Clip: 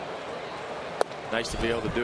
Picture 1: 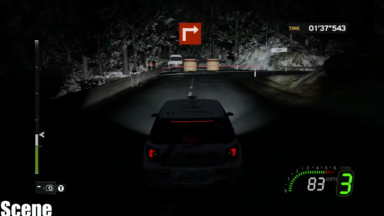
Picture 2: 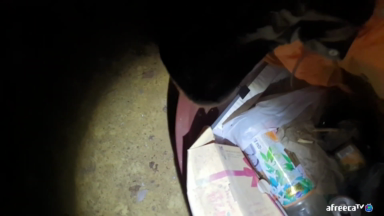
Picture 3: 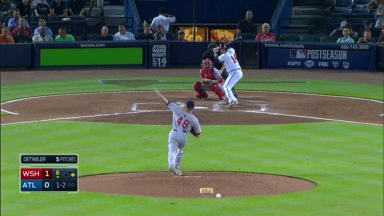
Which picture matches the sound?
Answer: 3